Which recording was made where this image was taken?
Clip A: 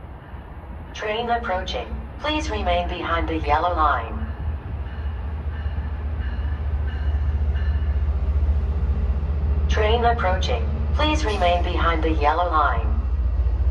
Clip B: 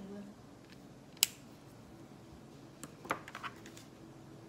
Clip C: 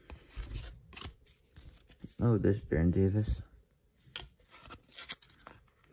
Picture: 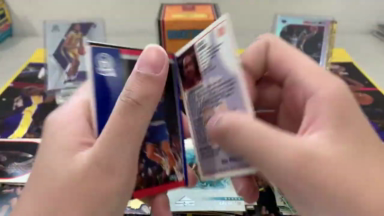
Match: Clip C